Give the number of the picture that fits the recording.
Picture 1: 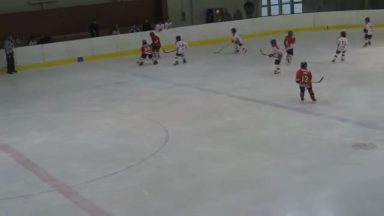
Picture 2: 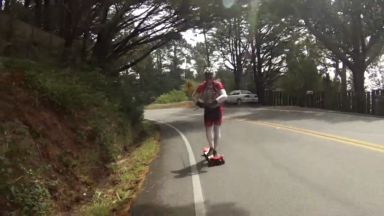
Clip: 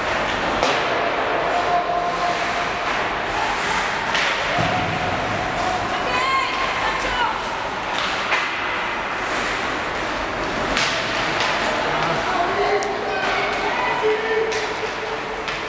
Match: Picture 1